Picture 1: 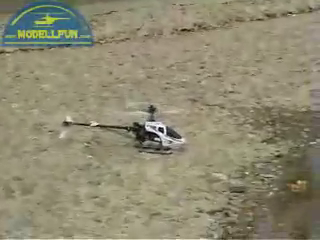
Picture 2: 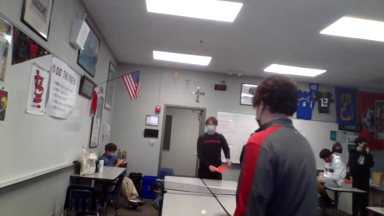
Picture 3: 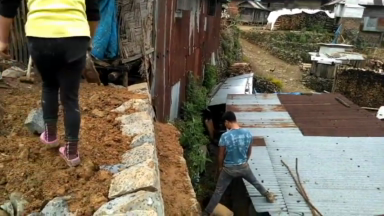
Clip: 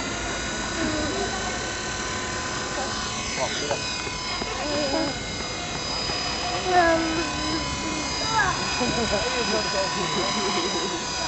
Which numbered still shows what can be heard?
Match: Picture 1